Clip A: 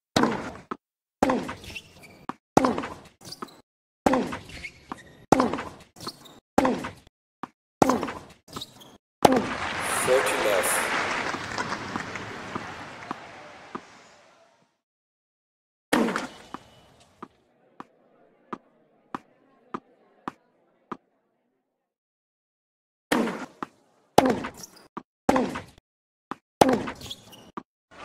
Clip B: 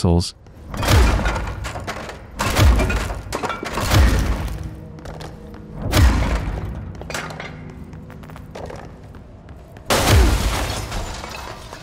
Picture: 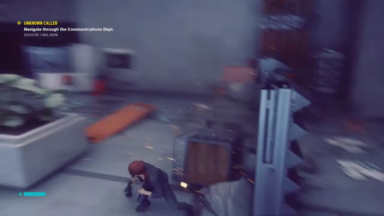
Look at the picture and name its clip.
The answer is B